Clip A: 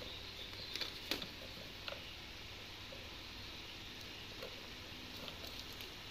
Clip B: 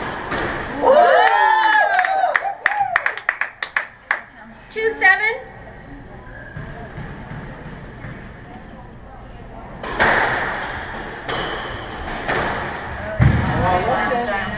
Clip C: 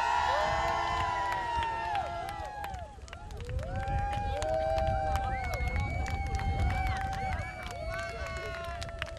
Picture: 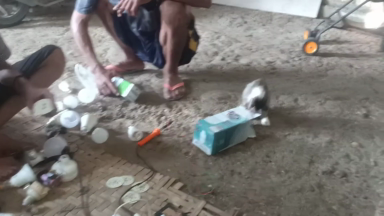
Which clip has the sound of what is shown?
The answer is A